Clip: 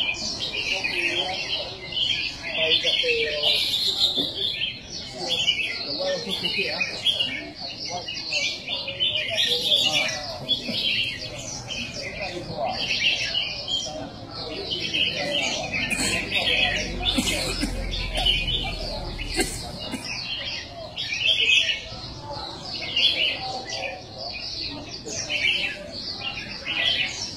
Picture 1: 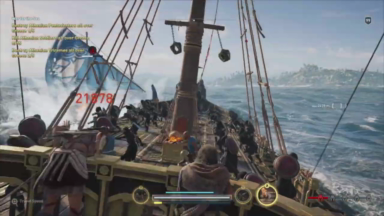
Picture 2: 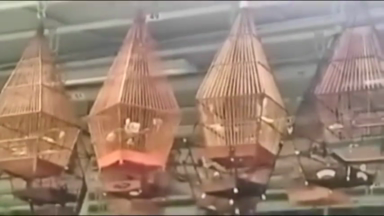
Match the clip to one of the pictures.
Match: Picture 2